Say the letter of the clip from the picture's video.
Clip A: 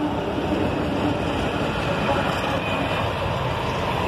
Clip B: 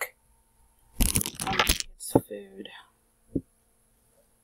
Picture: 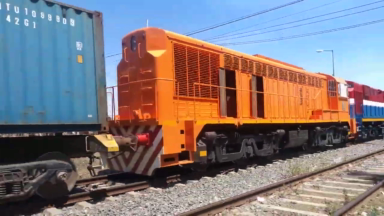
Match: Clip A